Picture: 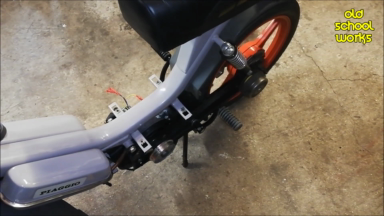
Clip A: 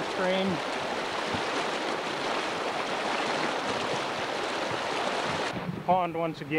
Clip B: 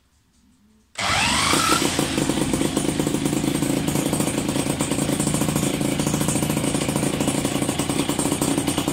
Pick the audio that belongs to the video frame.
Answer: B